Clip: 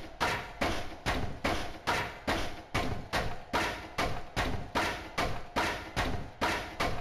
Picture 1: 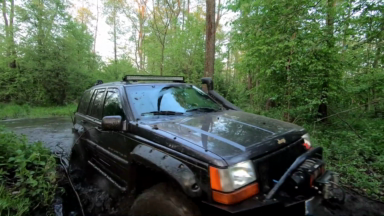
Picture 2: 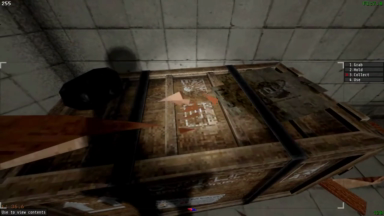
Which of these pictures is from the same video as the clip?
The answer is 2